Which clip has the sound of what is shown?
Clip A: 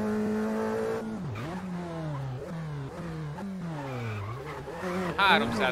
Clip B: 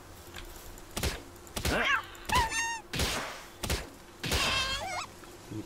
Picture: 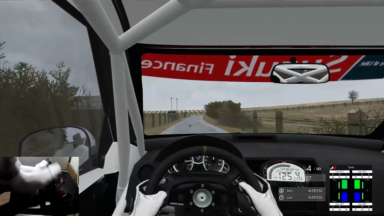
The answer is A